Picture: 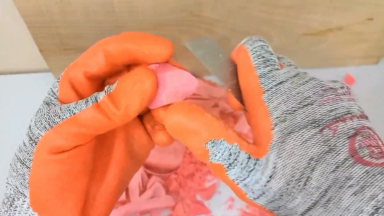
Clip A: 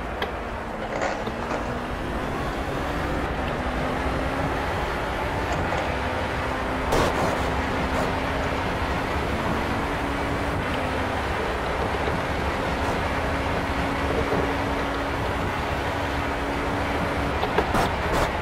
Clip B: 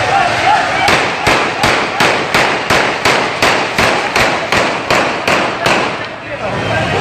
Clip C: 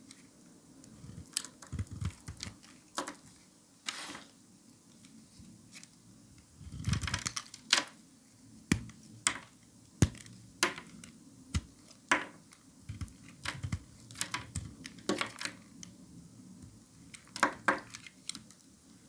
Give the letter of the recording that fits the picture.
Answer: C